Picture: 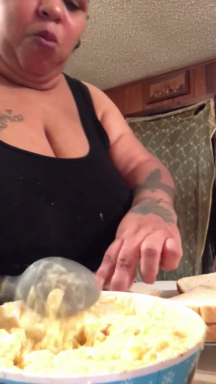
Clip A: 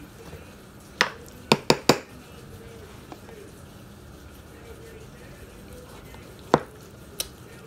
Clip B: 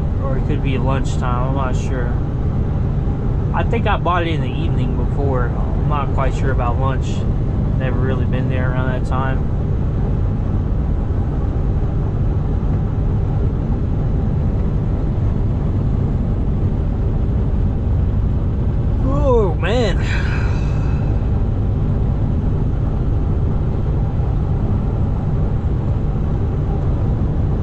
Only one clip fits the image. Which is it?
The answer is A